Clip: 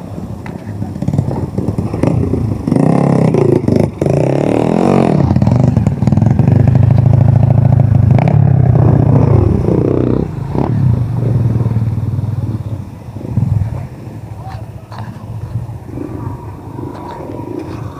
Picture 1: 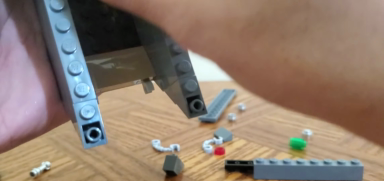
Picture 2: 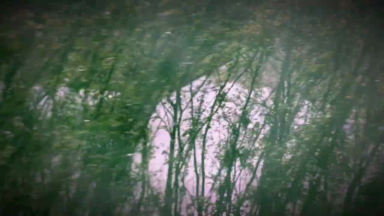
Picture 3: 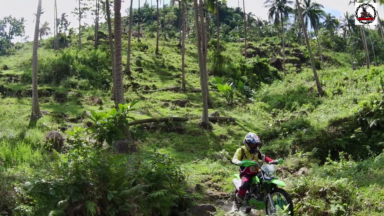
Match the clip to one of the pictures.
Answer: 3